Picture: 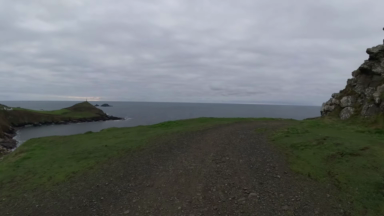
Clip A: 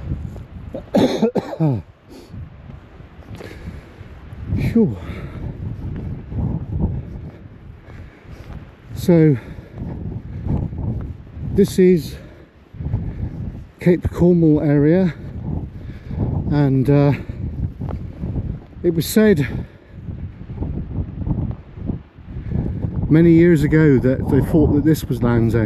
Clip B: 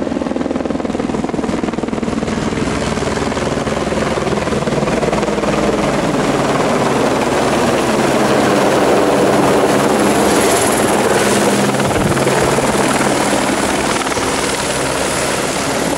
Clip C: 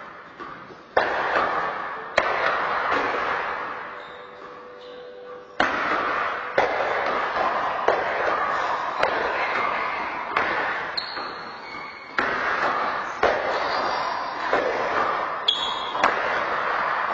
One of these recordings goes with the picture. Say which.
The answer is A